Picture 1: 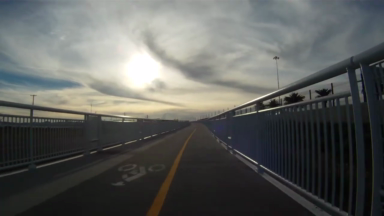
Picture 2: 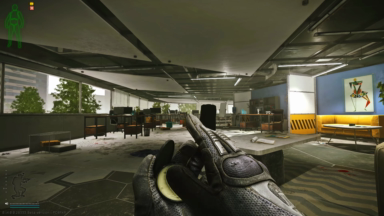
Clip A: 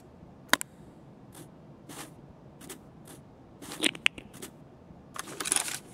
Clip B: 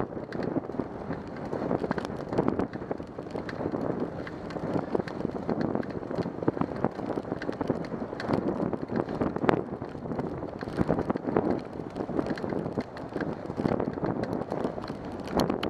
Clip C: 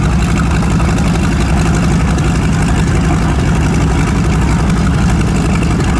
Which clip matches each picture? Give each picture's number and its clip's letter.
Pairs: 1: B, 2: A